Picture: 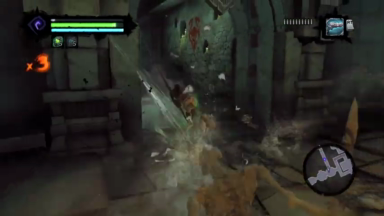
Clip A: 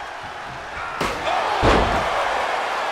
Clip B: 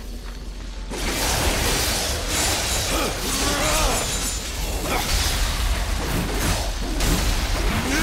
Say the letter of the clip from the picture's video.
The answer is B